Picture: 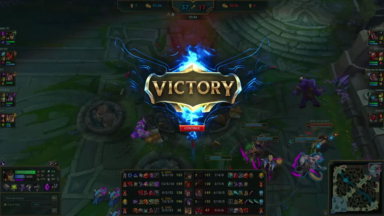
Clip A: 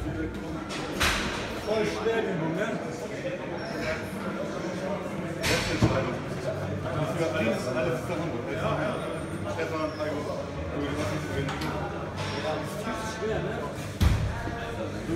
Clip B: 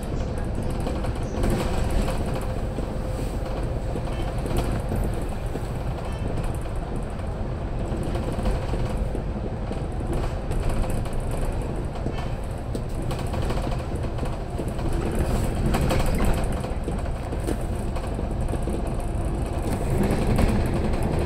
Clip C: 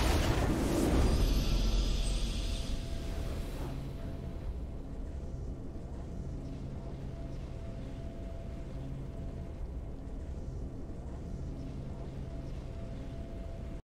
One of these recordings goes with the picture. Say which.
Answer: C